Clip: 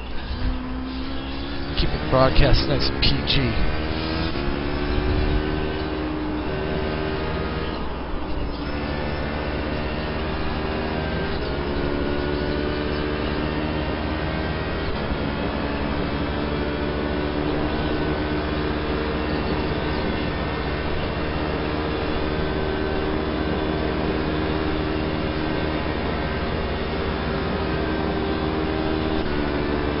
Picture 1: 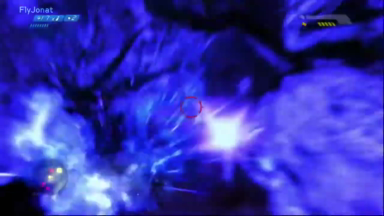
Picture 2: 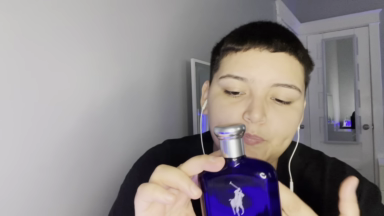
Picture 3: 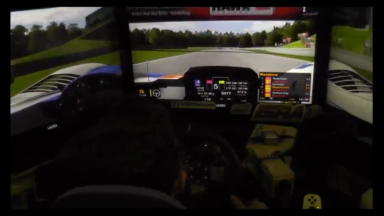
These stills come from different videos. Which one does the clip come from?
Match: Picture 3